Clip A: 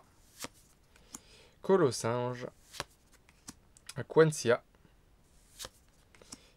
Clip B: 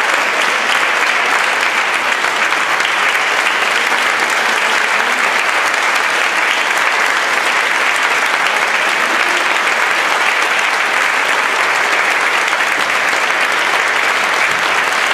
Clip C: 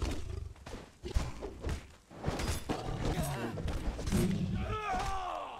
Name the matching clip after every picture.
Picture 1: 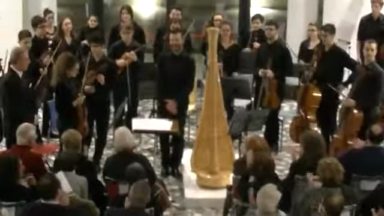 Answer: B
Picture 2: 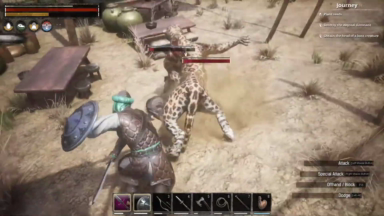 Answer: C